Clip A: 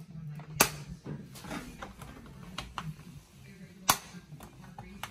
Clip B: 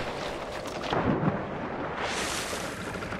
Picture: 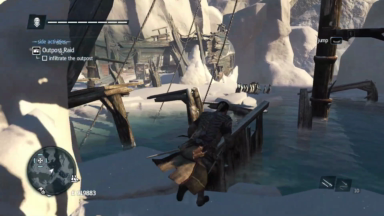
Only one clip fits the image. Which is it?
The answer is B